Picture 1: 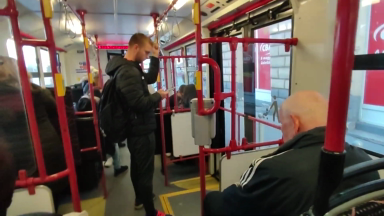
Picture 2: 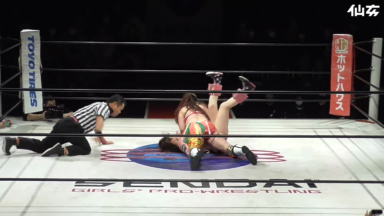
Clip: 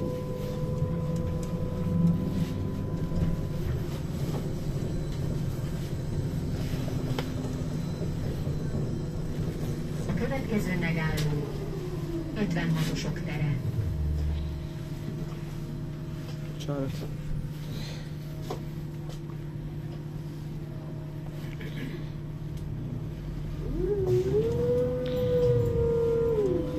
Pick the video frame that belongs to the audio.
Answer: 1